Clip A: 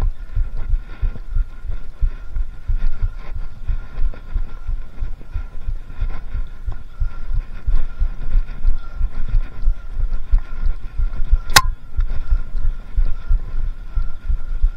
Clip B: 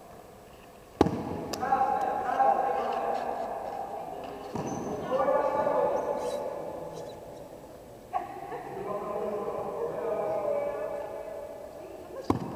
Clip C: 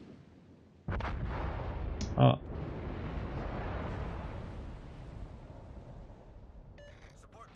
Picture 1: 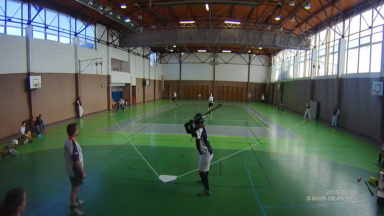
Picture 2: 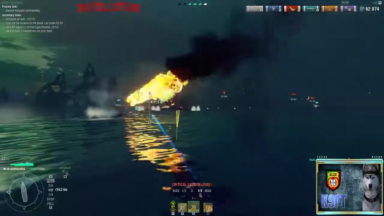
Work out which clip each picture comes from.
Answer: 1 B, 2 C